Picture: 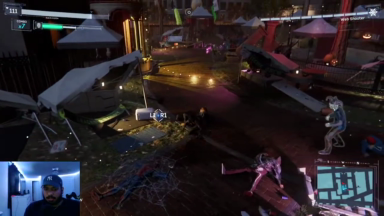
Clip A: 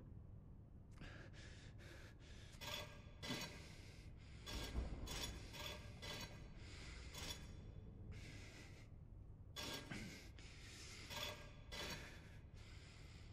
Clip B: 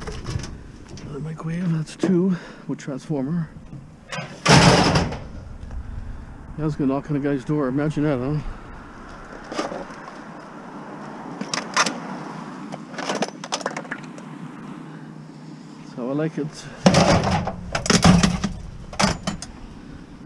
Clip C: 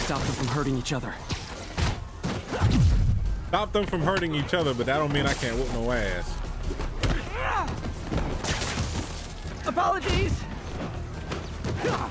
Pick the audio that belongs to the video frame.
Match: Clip C